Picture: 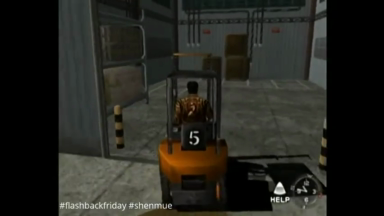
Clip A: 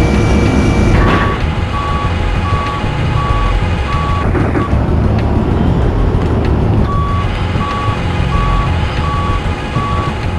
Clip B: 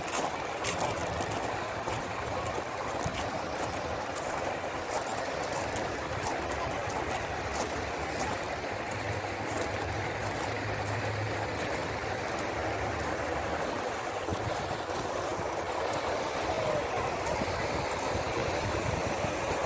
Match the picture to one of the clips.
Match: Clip A